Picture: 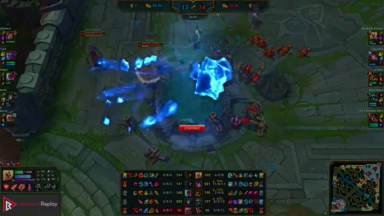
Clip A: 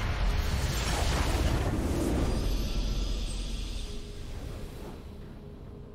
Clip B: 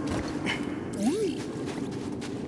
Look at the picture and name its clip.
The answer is A